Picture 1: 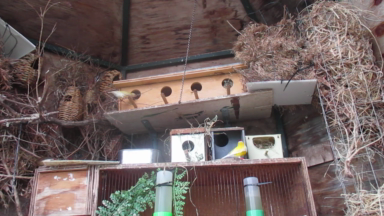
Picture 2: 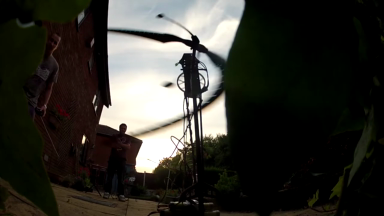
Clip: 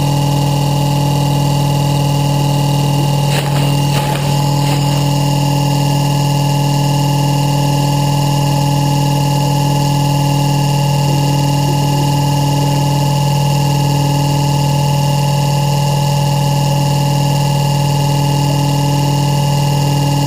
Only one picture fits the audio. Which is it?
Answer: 2